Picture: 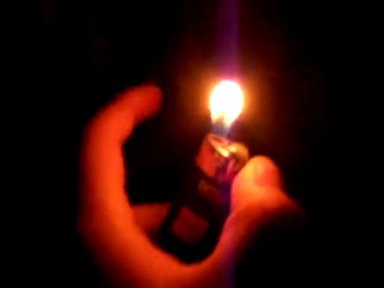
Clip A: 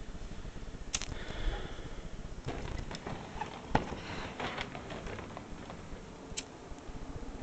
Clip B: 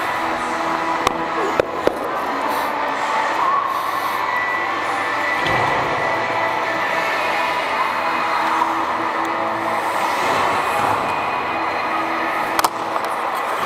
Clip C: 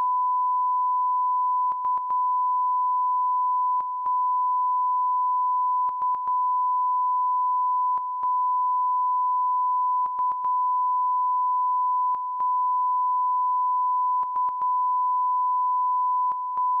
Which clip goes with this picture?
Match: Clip A